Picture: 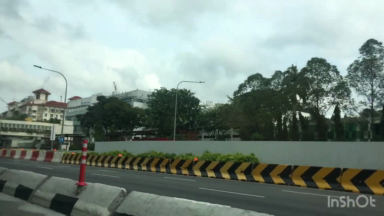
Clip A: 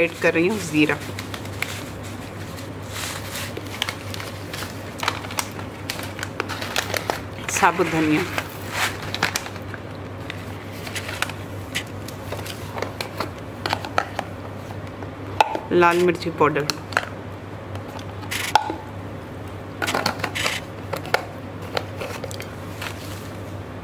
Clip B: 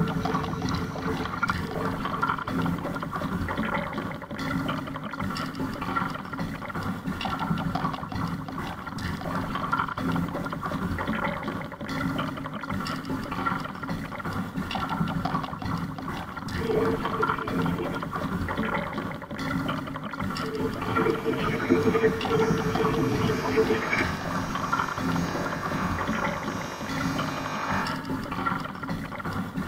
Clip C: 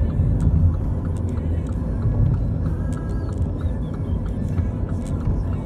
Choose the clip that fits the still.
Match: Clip C